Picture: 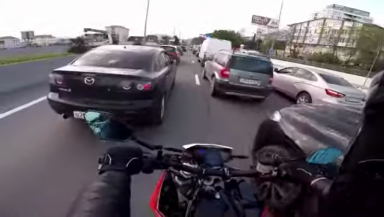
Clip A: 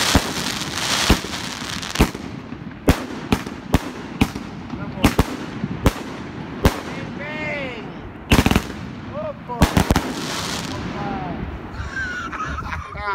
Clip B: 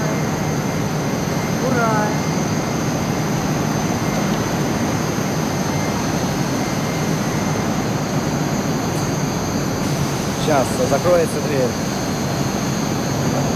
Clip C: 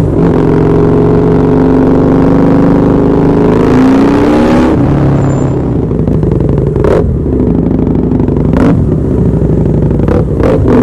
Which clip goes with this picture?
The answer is C